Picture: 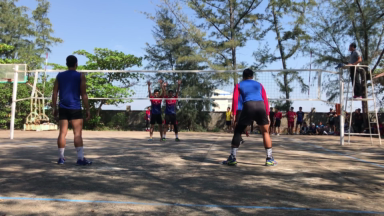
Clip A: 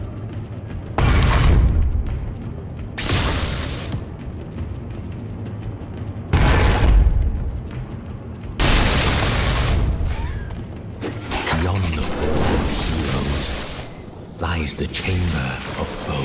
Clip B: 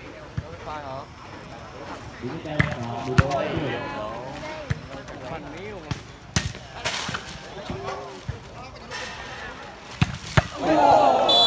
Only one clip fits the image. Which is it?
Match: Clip B